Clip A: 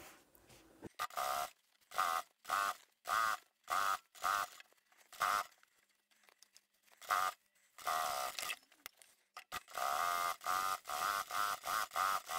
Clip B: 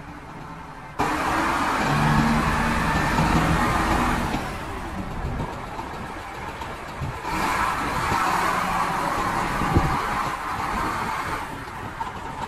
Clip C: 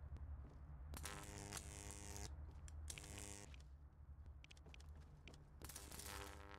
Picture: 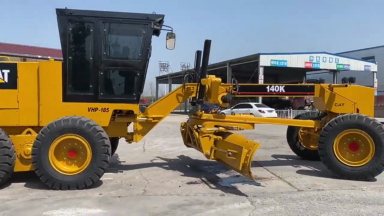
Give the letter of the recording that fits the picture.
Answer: B